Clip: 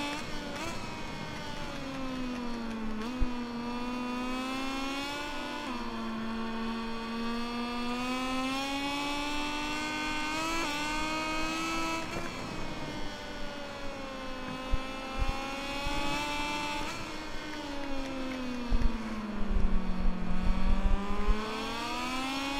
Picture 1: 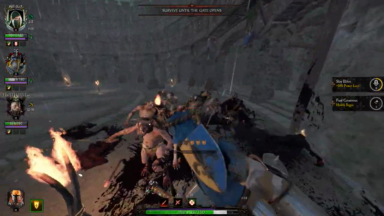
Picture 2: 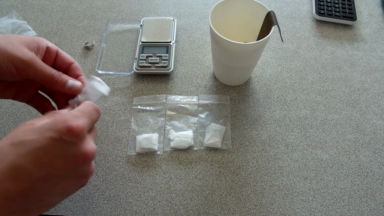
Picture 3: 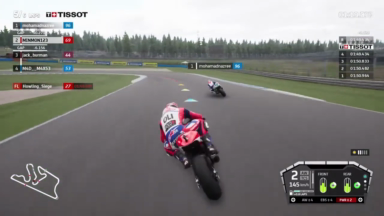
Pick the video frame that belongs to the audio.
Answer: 3